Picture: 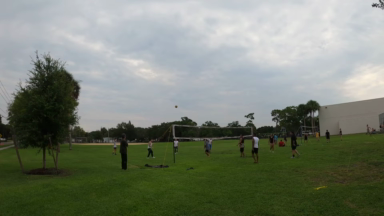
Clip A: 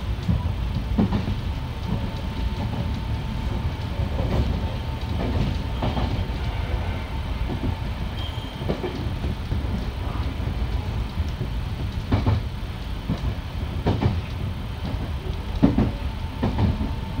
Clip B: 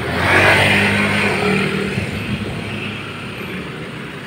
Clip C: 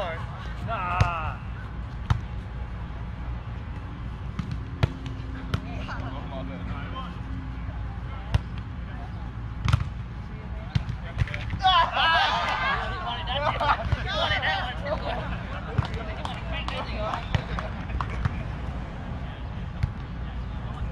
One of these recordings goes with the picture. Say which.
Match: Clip C